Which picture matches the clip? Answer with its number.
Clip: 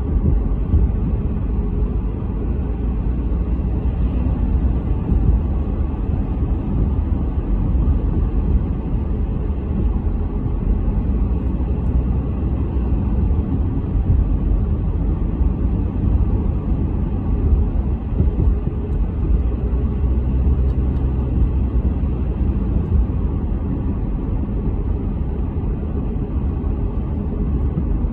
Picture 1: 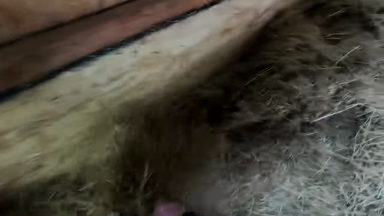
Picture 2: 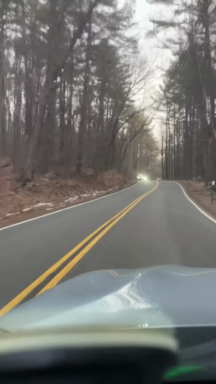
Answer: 2